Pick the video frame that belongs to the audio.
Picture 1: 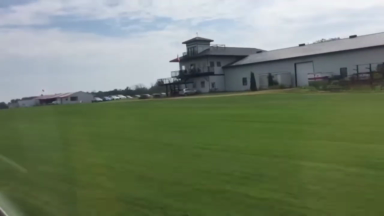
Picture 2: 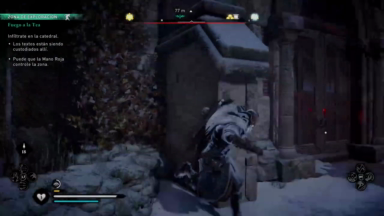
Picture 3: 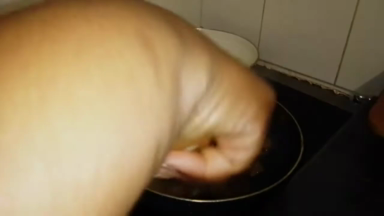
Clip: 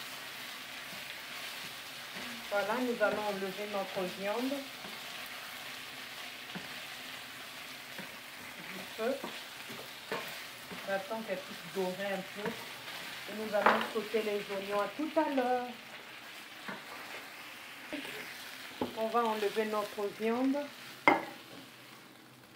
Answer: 3